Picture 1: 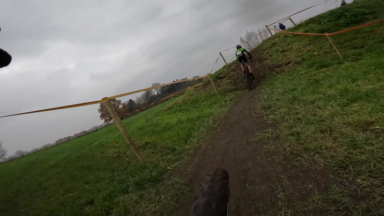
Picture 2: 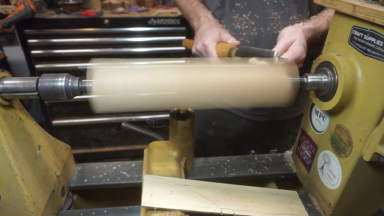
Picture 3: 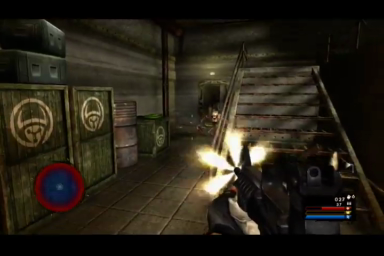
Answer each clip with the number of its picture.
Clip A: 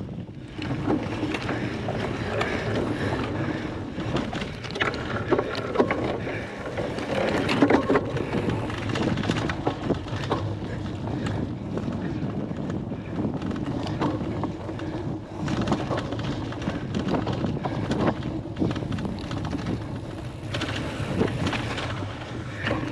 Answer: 1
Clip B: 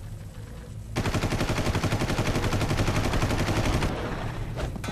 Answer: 3